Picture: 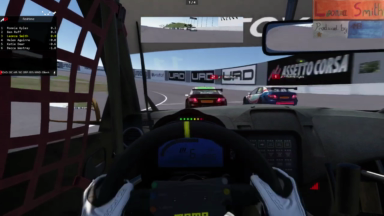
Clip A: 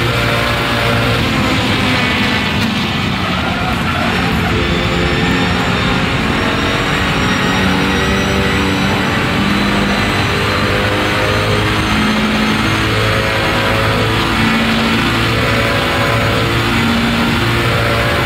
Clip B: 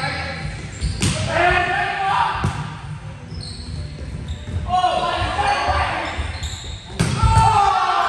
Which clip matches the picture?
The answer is A